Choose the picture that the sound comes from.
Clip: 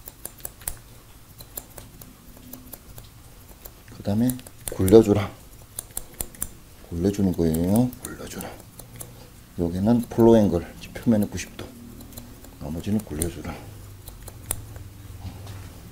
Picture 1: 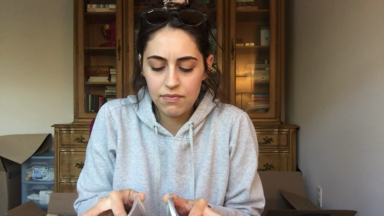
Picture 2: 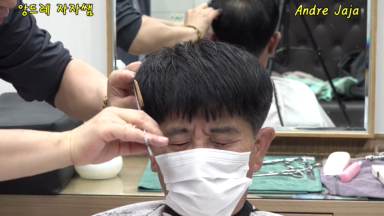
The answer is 2